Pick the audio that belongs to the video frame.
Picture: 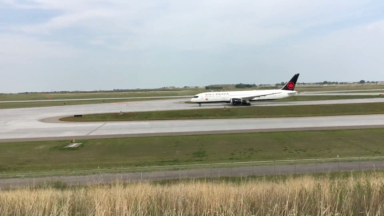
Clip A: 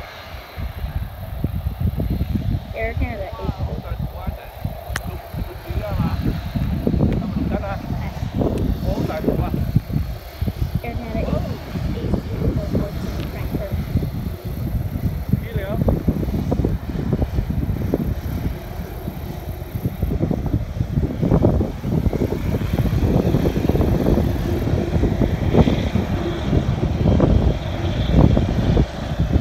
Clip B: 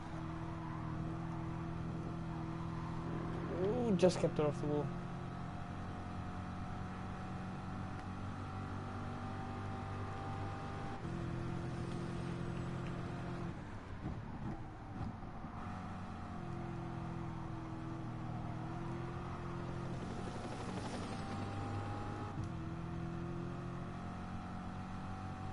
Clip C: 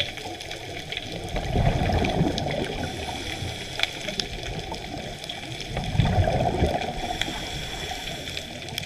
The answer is A